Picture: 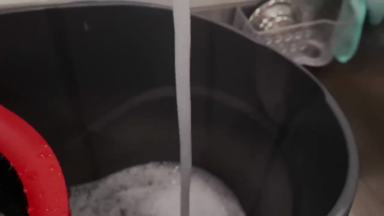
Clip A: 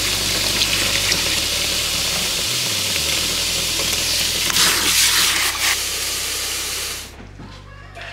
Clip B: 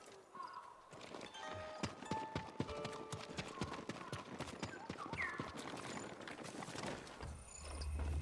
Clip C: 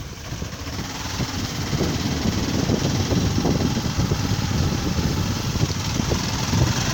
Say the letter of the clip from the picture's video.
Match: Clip A